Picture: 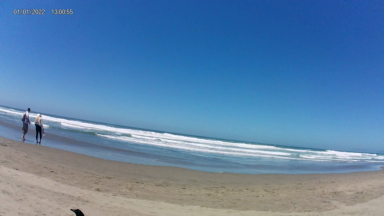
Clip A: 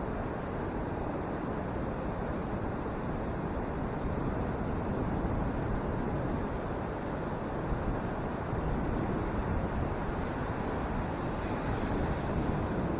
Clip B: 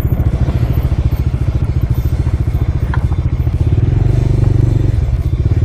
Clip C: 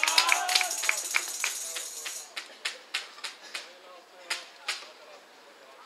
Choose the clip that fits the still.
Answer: A